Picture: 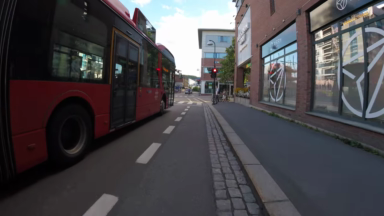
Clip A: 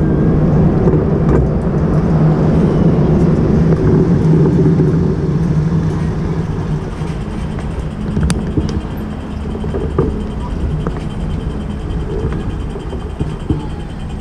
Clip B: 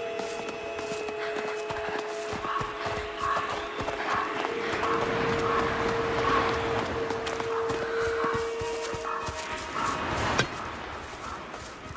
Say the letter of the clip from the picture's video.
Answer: A